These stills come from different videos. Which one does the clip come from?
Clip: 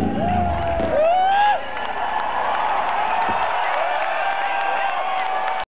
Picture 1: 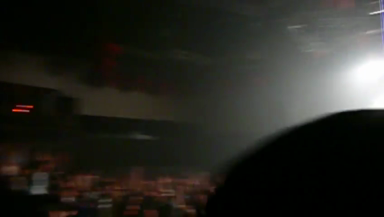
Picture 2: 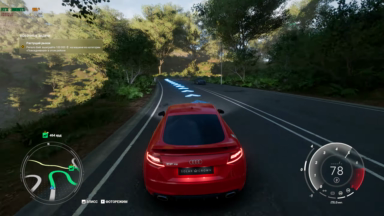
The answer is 1